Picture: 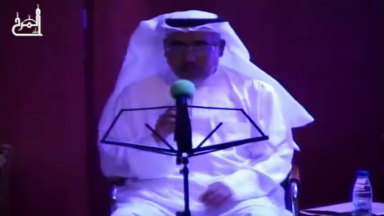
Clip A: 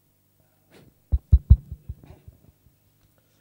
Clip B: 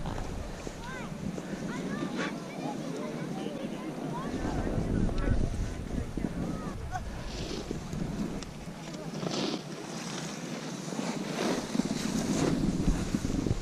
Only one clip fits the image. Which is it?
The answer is A